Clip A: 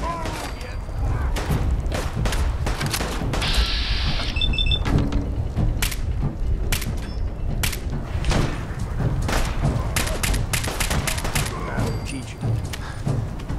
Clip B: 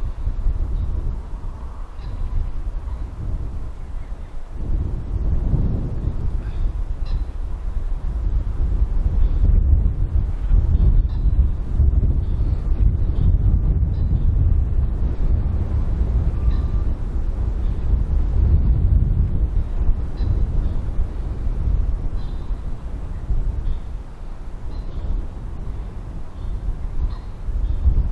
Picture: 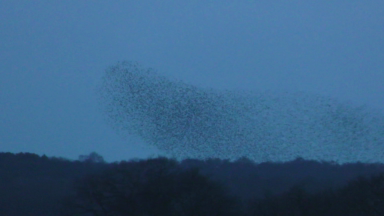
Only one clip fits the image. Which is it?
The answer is B